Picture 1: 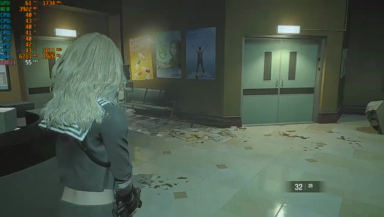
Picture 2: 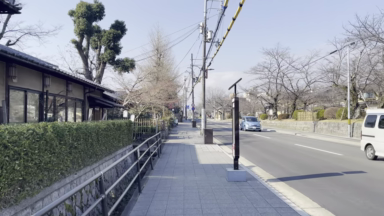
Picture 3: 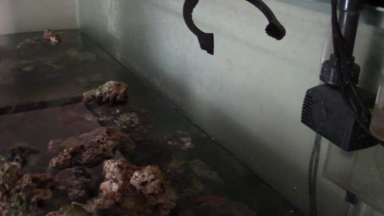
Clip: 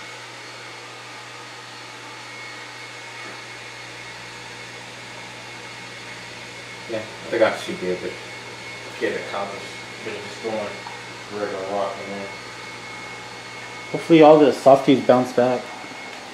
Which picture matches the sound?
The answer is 3